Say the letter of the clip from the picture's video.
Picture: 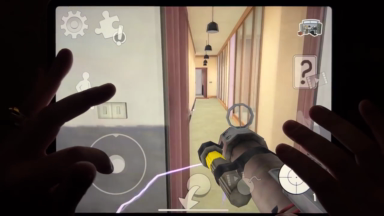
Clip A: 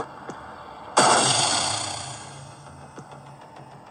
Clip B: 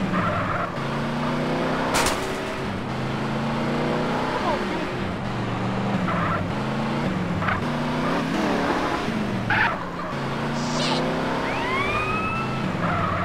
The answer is A